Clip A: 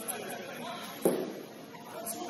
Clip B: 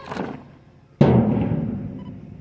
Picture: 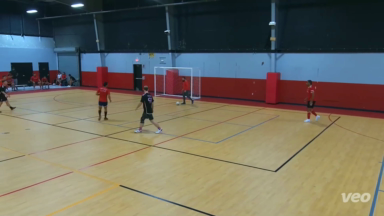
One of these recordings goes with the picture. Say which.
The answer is A